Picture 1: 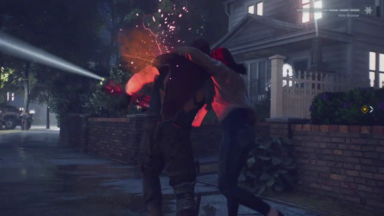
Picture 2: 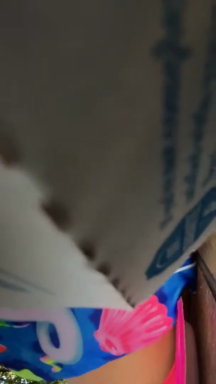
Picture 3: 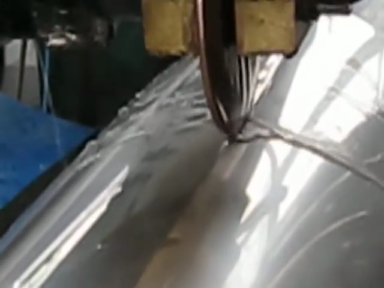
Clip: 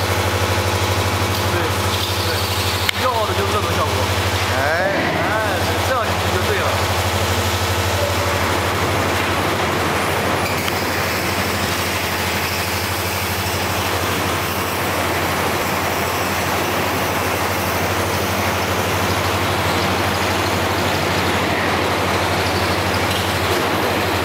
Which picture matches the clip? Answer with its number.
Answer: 3